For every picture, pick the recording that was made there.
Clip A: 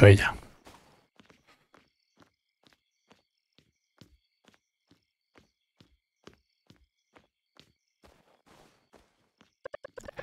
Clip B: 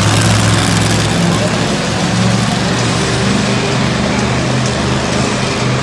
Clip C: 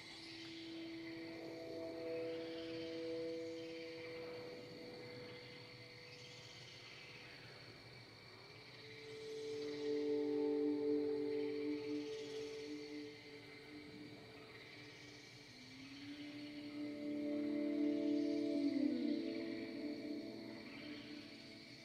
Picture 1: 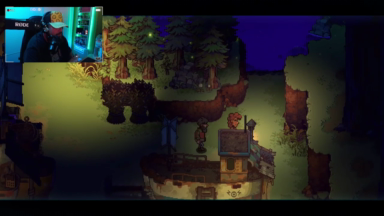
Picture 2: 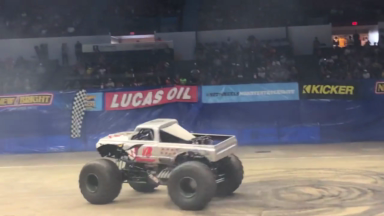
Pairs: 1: A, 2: B